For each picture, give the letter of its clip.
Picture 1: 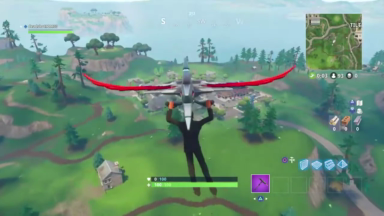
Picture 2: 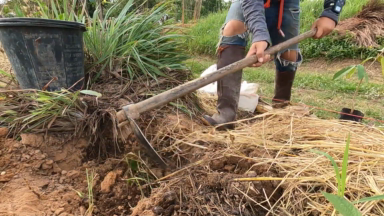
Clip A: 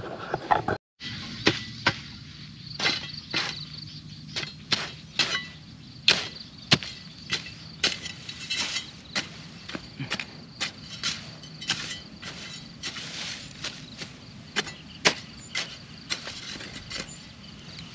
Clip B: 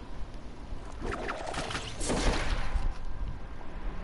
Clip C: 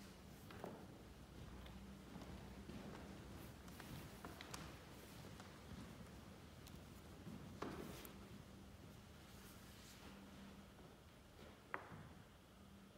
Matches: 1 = B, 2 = A